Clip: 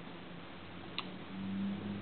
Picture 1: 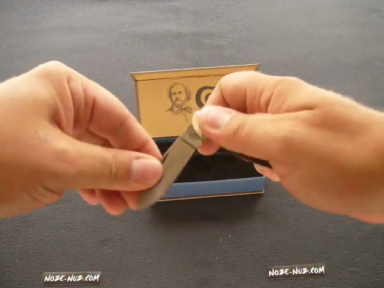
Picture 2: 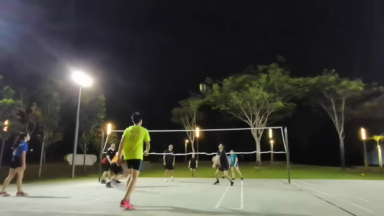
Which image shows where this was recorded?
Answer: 1